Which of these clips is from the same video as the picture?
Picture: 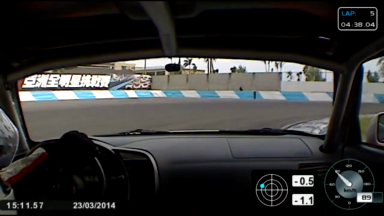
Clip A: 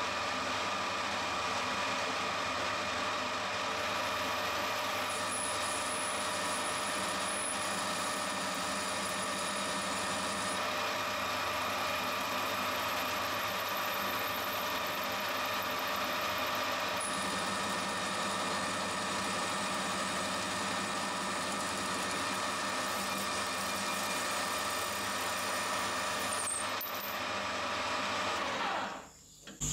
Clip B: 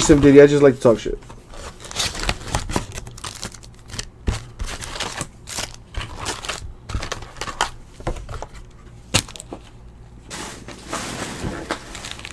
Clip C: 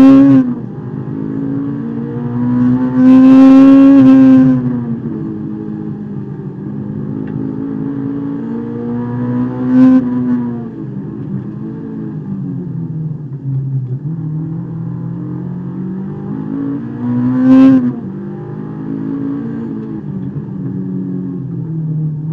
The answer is C